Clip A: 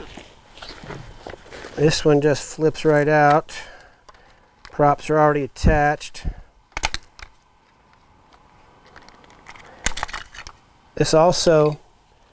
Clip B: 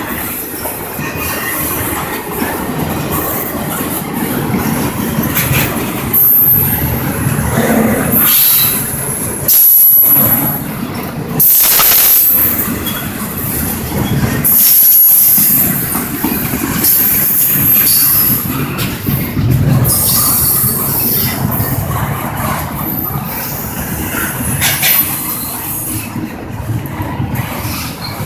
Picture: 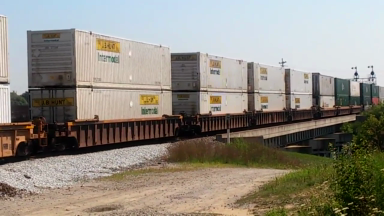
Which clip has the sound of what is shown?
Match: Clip B